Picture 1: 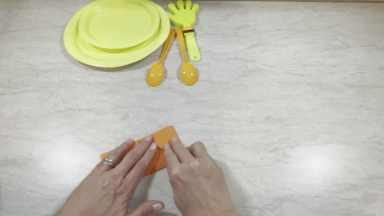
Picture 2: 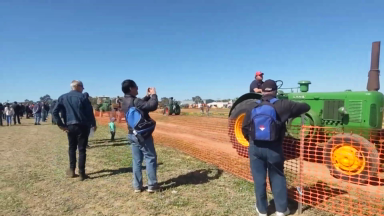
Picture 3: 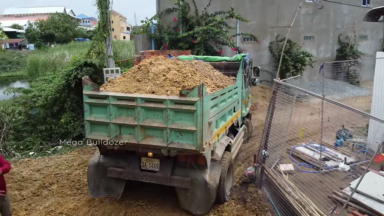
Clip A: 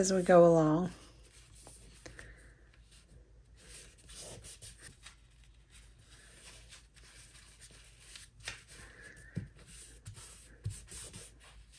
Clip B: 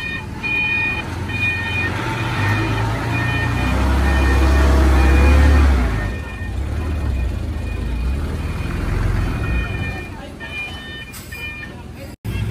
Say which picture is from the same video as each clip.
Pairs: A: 1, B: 3